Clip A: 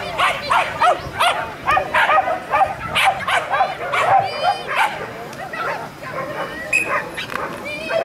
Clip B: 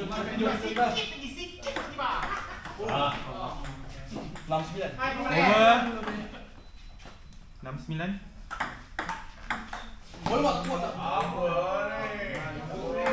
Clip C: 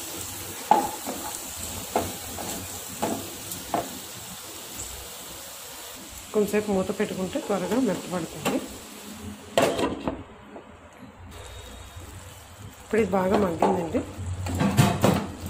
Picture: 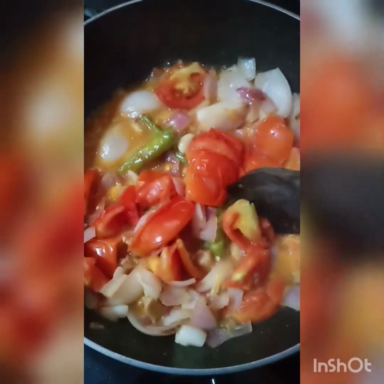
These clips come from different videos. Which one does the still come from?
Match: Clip C